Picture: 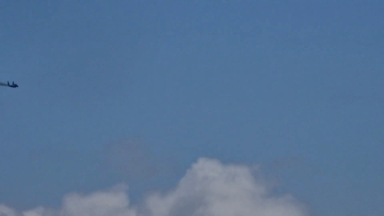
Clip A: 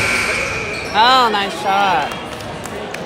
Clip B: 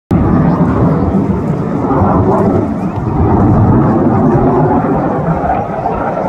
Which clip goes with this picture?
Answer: B